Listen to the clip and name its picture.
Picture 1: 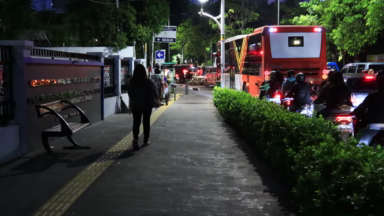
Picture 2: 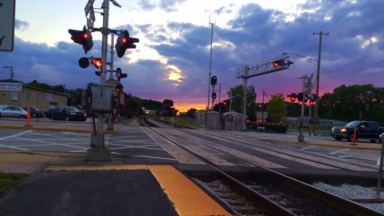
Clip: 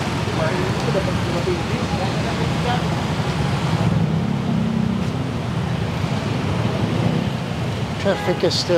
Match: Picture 1